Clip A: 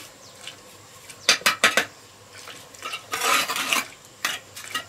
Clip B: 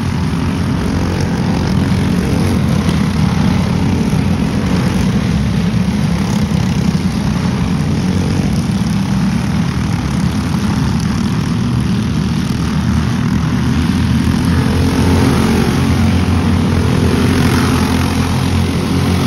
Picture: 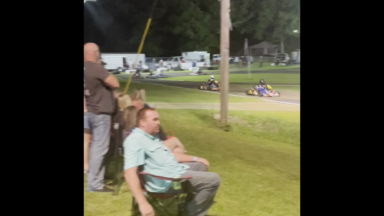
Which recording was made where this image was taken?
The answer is B